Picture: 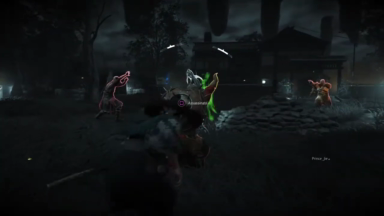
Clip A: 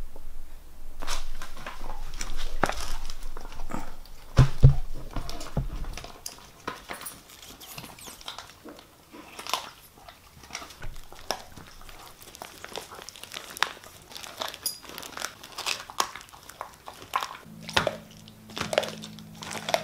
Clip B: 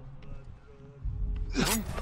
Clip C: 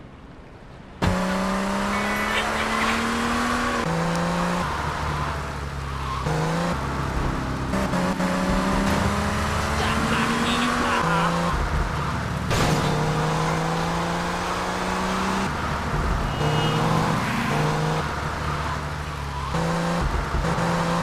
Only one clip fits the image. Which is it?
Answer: B